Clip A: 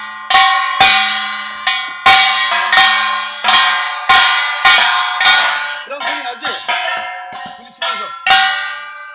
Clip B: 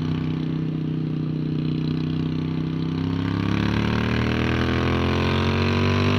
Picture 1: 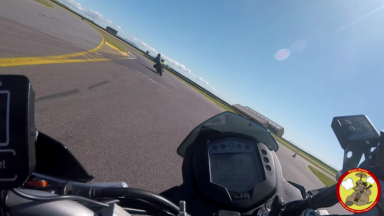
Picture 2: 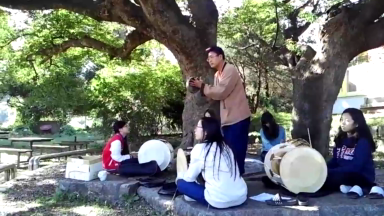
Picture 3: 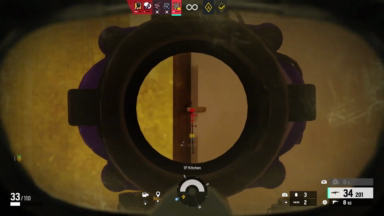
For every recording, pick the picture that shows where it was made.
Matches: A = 2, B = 1